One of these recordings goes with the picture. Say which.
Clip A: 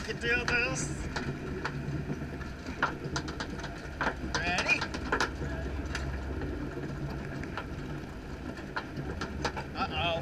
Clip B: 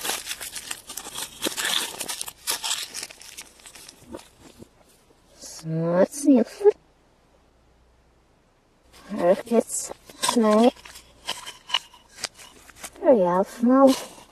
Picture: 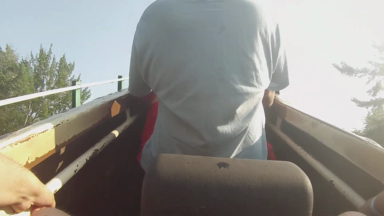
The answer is A